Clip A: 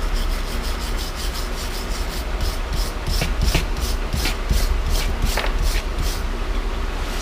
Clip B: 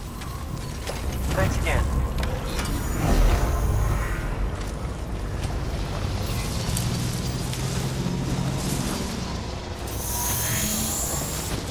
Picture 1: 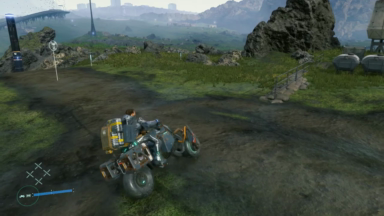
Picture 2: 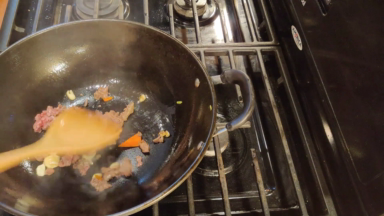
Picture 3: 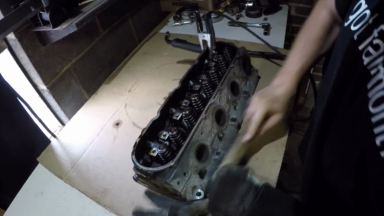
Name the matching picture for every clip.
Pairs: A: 3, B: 1